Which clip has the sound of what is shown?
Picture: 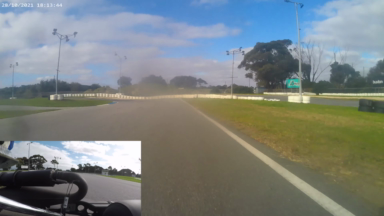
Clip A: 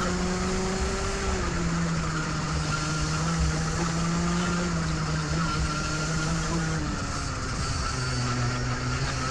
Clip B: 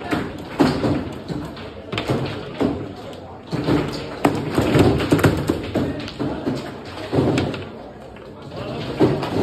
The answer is A